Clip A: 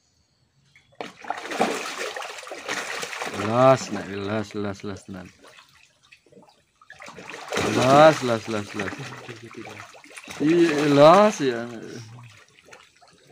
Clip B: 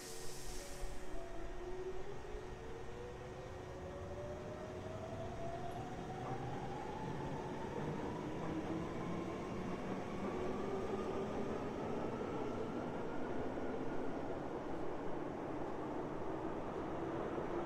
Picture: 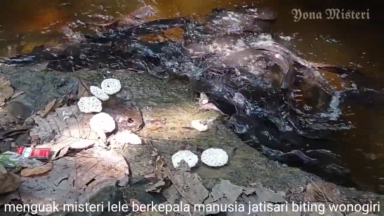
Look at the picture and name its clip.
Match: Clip A